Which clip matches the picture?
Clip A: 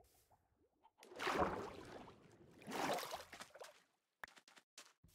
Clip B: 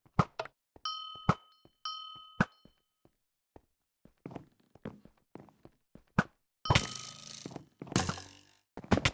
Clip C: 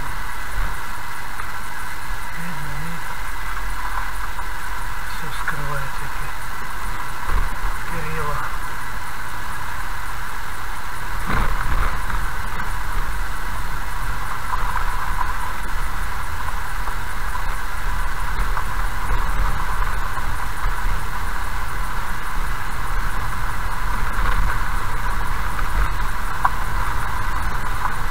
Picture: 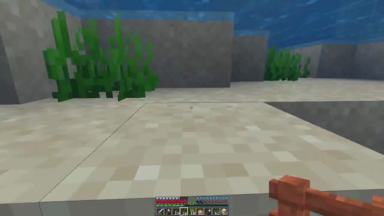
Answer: A